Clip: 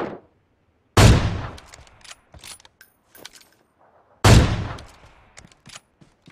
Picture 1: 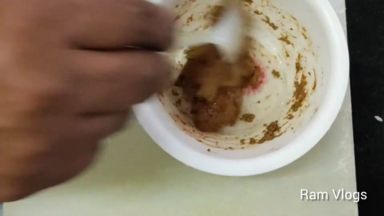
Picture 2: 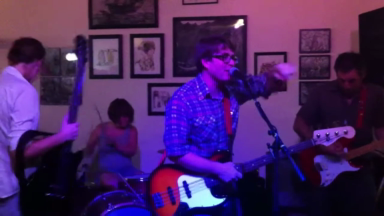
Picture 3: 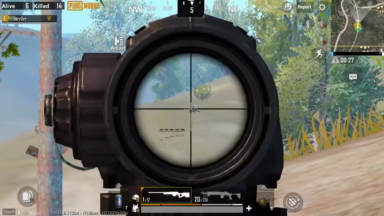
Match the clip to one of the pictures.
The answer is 3